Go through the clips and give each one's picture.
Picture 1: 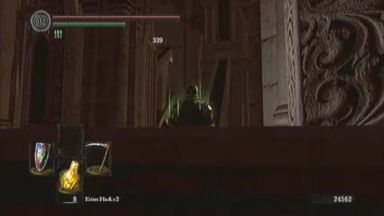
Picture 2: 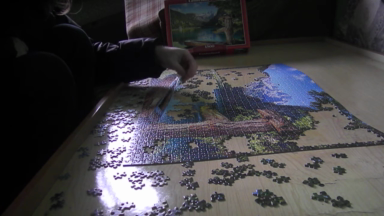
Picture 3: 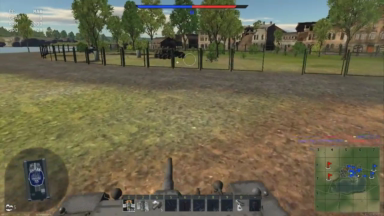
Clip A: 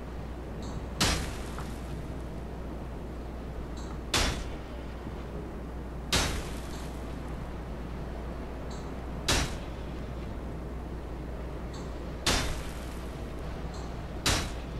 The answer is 1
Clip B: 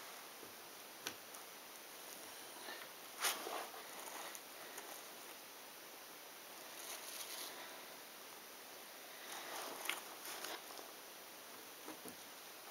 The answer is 2